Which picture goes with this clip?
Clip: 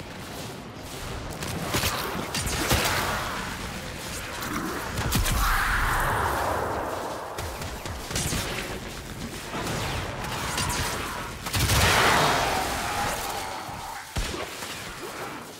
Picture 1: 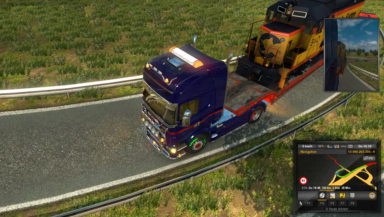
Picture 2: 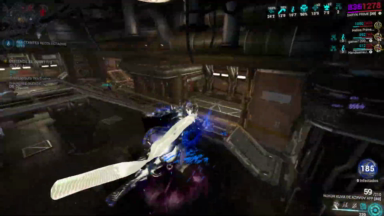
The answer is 2